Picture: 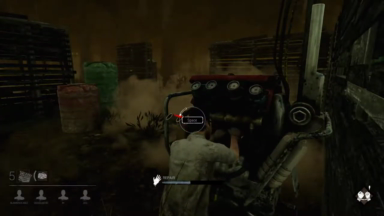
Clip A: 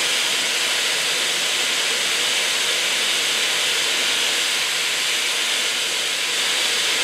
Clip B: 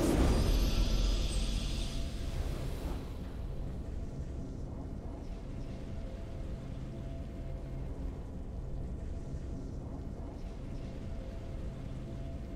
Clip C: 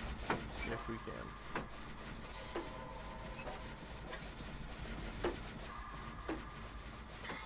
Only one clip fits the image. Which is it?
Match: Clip C